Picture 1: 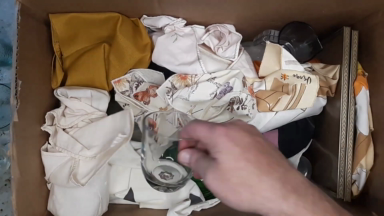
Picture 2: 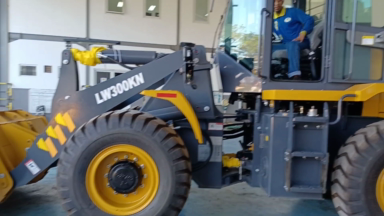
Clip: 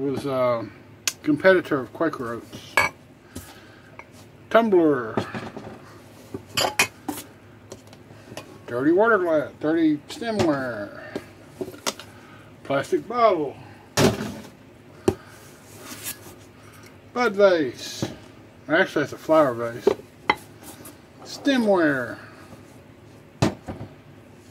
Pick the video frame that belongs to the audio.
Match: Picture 1